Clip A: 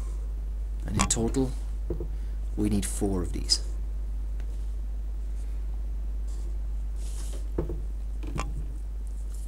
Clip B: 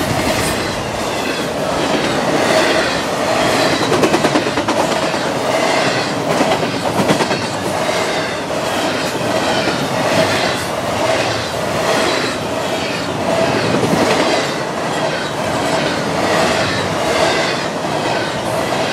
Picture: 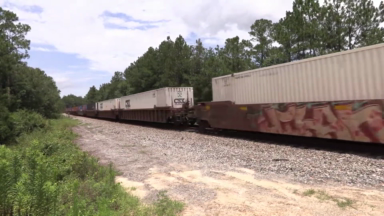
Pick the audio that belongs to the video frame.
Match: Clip B